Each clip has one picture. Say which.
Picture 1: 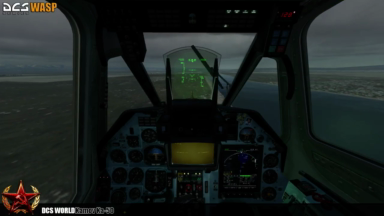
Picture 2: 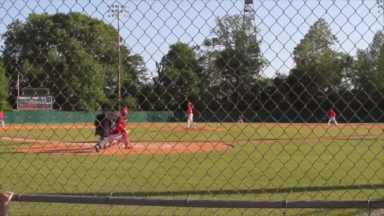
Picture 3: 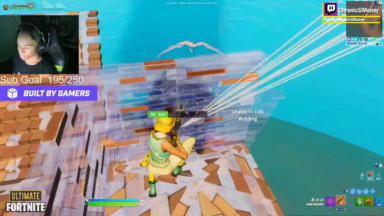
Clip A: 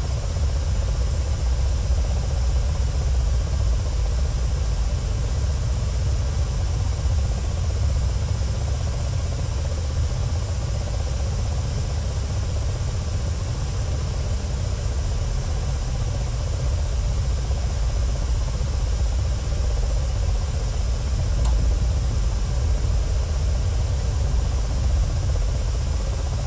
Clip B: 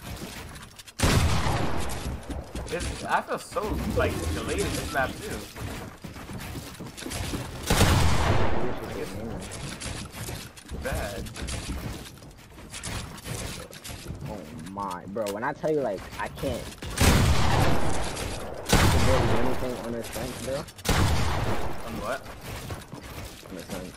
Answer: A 1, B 3